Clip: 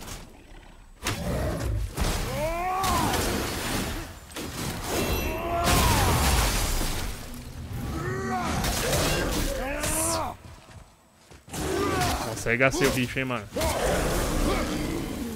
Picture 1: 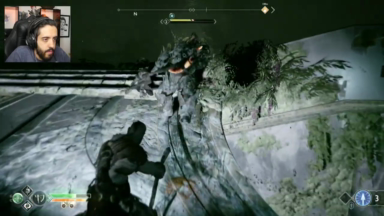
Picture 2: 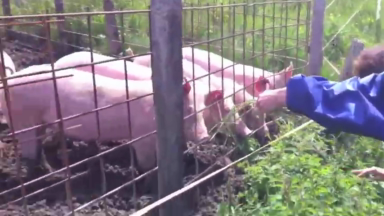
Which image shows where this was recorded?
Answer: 1